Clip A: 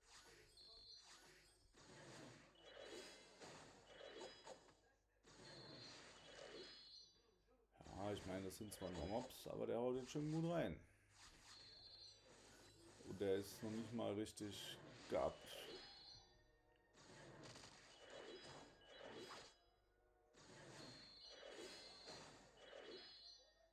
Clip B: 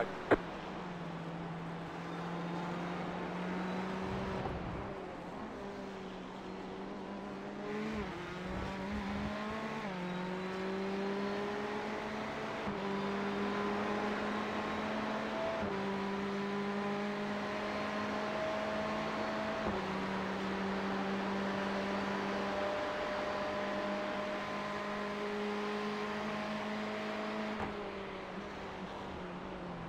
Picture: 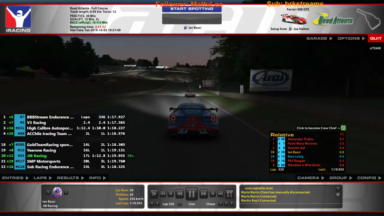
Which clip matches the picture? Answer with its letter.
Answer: B